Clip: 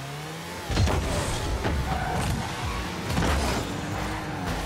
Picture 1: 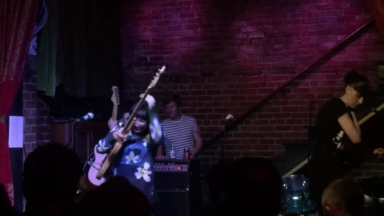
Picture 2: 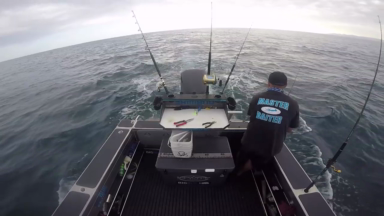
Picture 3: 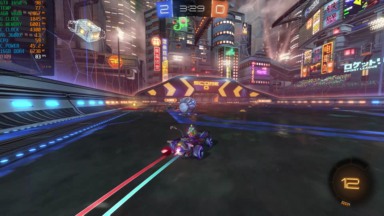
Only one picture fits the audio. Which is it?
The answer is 3